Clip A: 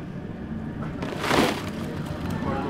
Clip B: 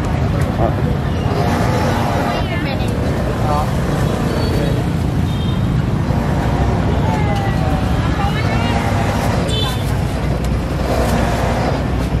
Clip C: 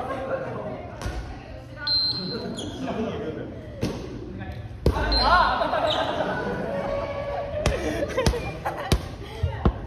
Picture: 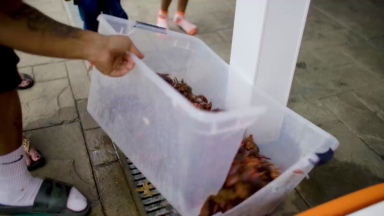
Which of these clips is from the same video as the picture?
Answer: A